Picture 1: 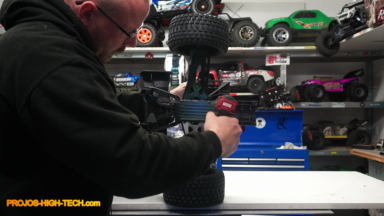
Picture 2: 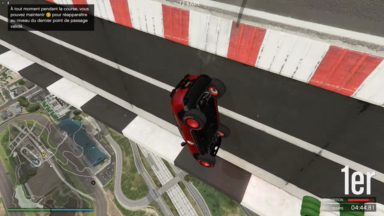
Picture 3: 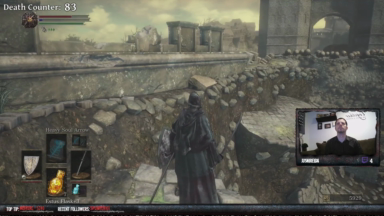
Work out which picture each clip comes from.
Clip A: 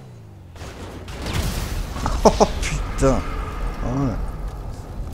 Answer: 2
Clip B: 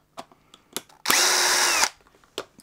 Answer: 1